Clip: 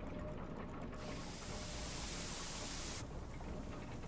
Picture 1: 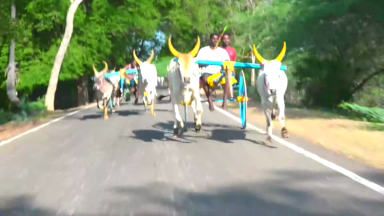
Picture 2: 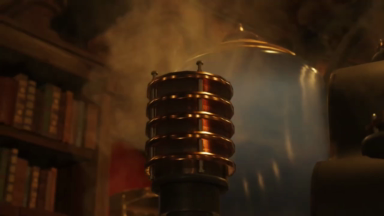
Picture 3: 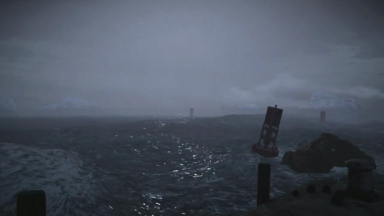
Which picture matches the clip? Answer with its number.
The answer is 2